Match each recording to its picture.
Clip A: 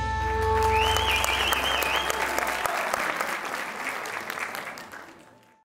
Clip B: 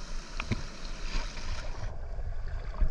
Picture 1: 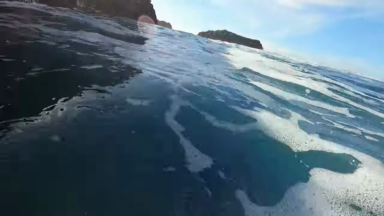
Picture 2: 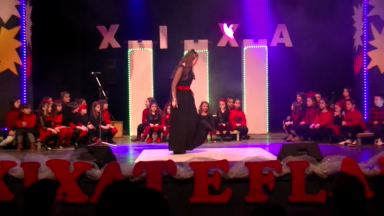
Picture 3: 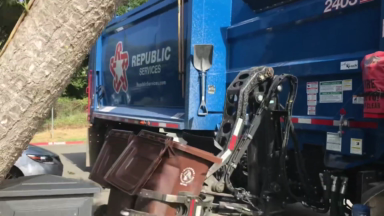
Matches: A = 2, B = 1